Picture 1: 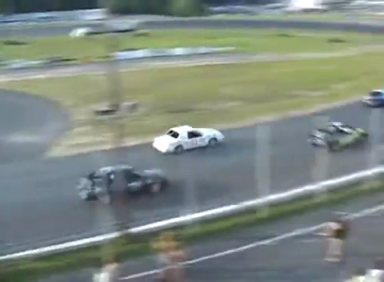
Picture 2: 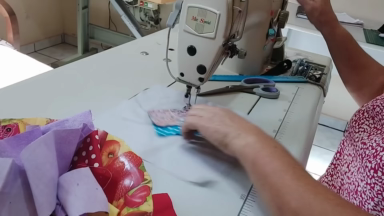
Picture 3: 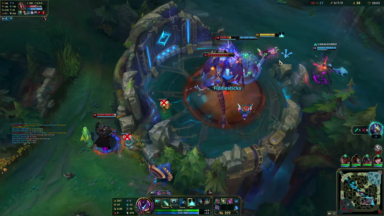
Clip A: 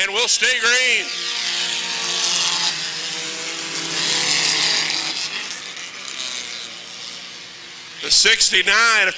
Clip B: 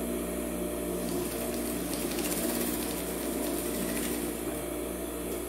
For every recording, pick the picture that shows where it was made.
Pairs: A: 1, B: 2